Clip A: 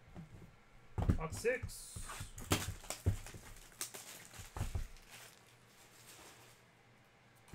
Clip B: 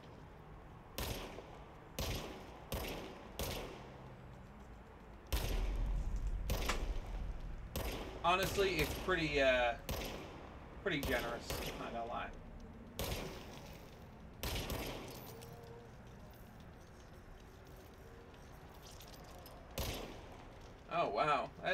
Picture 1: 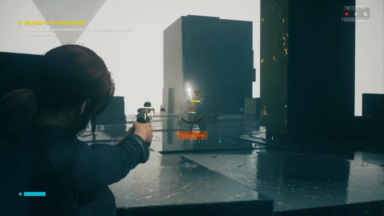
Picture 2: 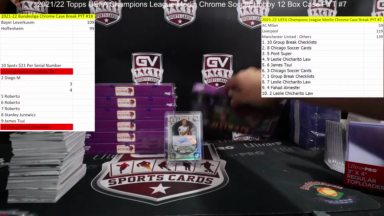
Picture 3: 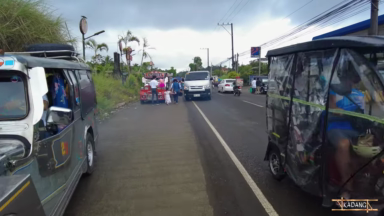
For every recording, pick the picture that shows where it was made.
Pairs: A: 2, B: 1